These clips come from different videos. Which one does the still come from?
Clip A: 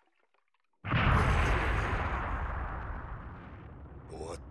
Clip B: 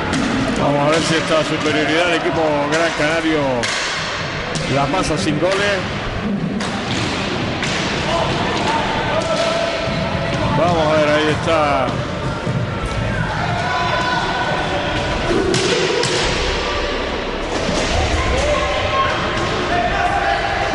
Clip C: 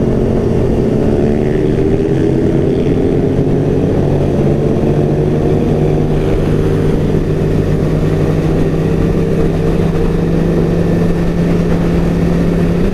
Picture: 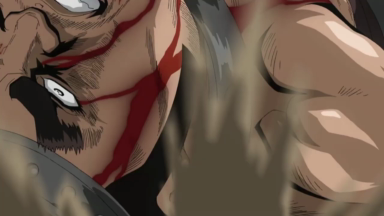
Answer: A